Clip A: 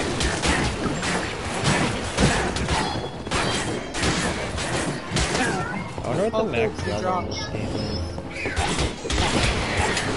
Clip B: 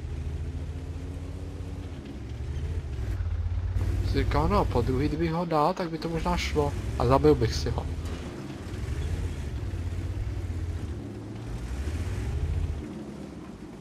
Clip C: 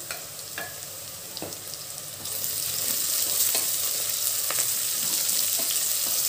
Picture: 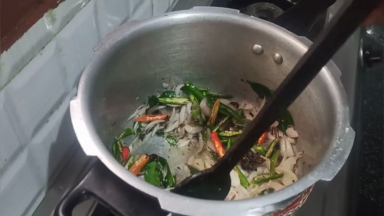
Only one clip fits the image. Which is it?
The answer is C